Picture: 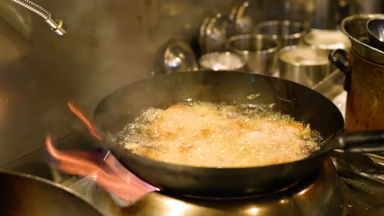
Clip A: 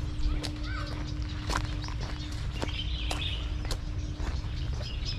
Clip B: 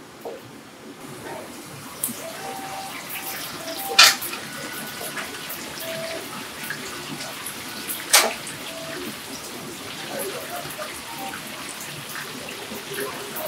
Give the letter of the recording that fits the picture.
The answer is B